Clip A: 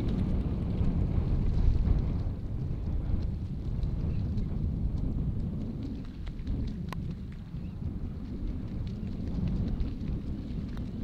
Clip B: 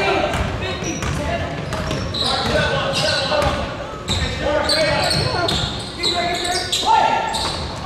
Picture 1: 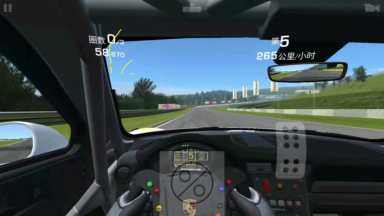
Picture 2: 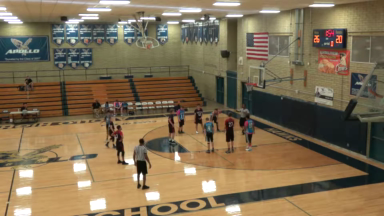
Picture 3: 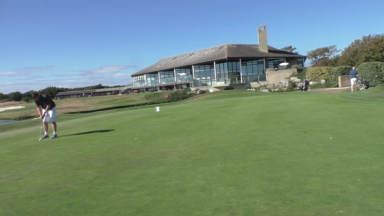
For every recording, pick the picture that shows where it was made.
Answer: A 3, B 2